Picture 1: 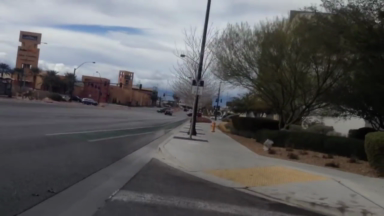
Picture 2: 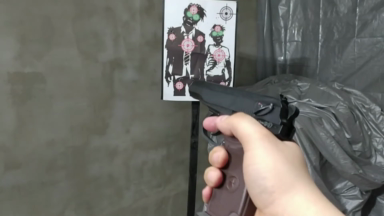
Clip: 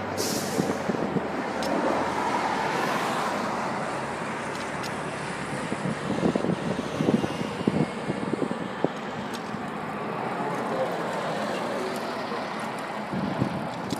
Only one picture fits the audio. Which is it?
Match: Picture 1